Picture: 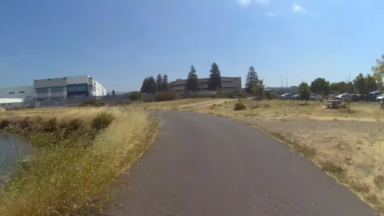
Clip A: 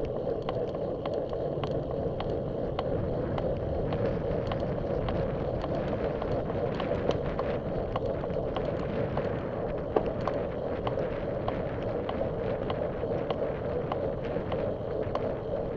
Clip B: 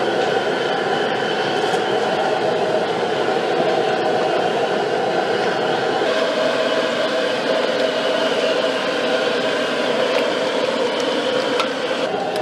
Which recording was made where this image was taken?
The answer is A